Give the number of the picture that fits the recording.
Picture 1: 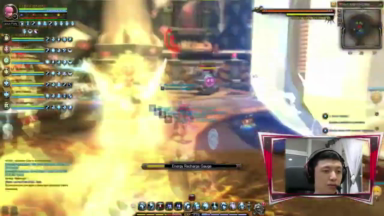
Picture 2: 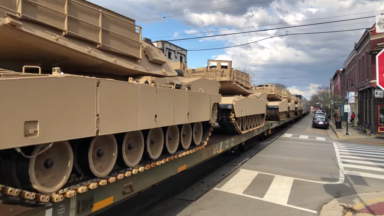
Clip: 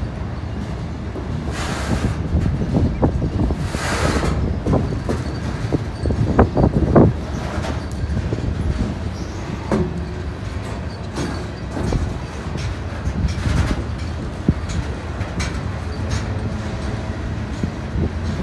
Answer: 2